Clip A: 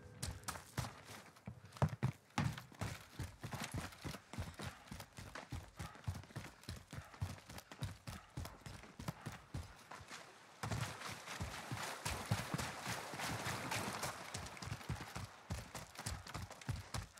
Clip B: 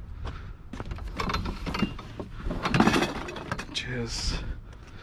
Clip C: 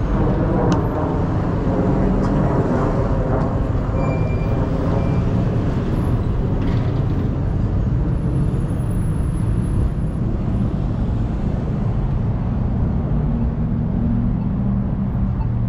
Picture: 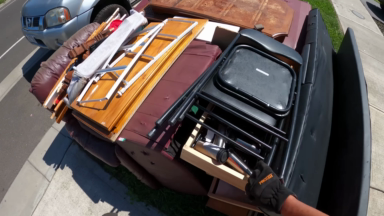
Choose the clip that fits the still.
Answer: B